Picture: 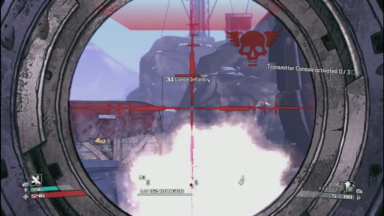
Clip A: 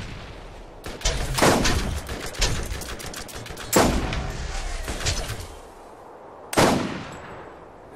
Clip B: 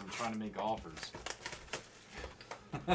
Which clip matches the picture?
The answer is A